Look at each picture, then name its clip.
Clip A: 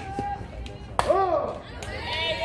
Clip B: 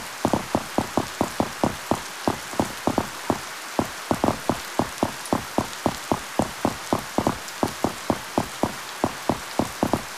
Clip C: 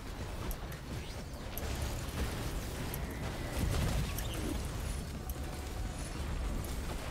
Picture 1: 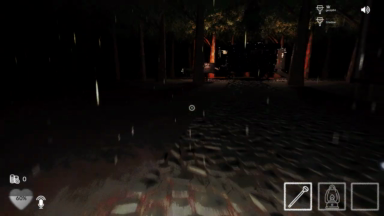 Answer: B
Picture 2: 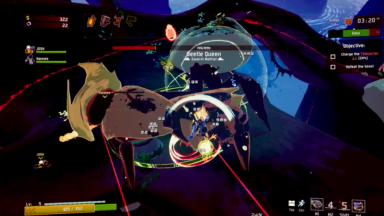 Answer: C